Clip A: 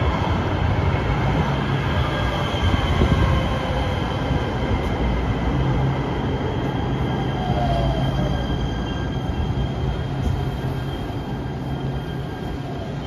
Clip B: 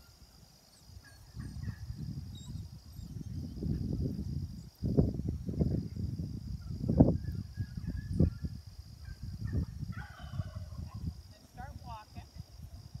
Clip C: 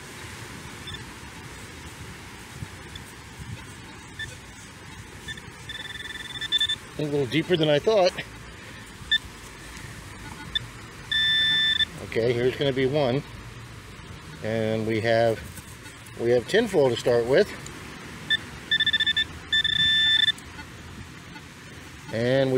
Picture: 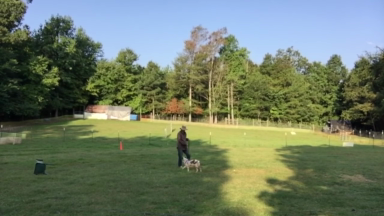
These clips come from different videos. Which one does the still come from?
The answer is B